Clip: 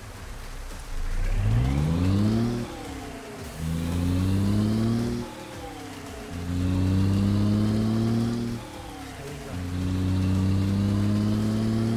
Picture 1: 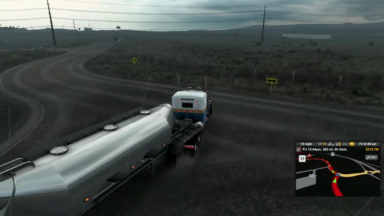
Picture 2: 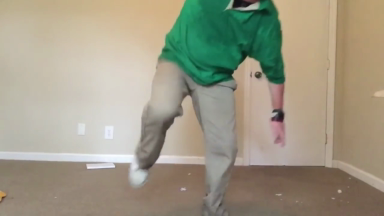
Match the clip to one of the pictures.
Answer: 1